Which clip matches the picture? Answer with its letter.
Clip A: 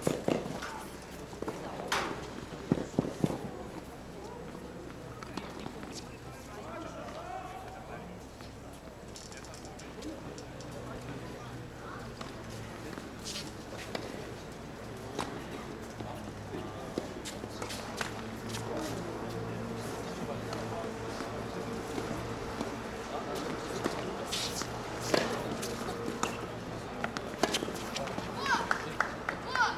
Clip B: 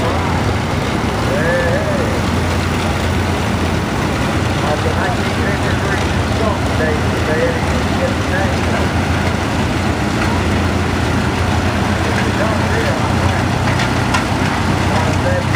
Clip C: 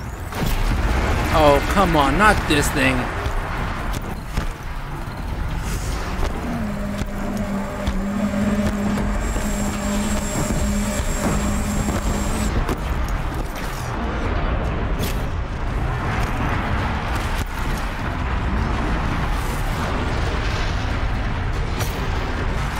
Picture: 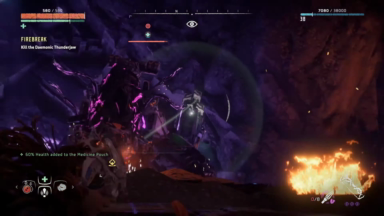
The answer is C